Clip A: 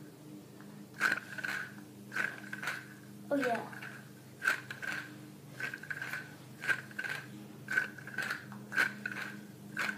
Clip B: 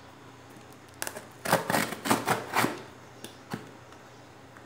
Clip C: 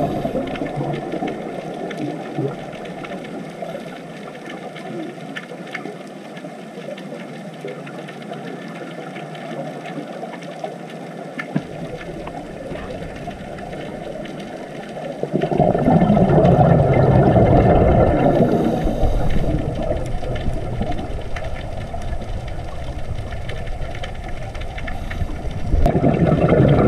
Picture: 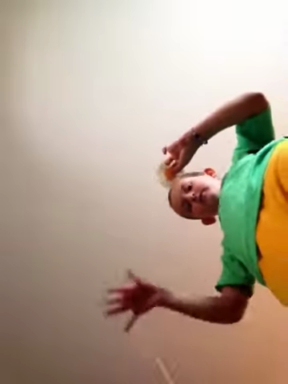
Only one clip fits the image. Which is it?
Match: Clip A